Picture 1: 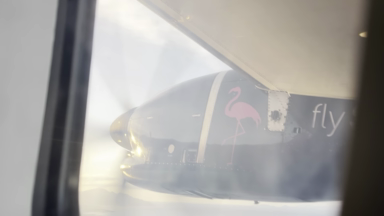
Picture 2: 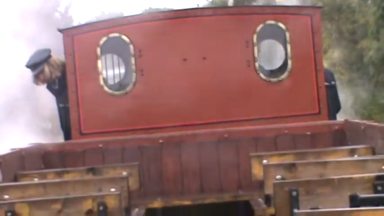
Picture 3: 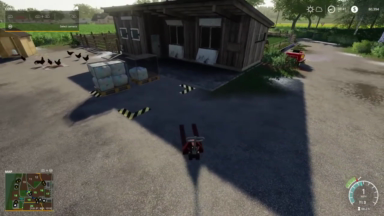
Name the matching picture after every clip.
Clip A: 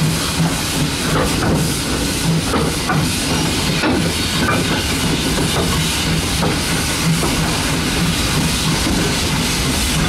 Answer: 2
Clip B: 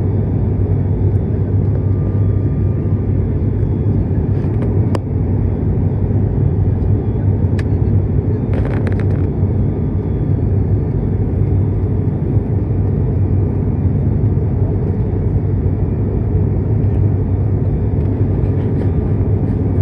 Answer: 1